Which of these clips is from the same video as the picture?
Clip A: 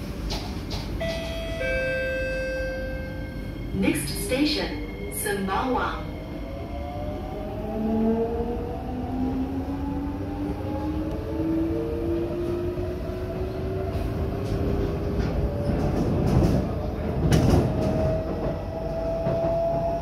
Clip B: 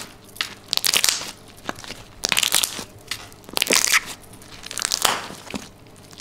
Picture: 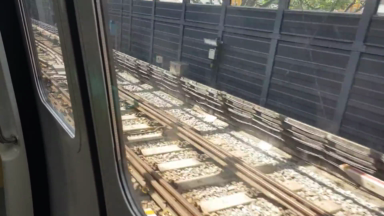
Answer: A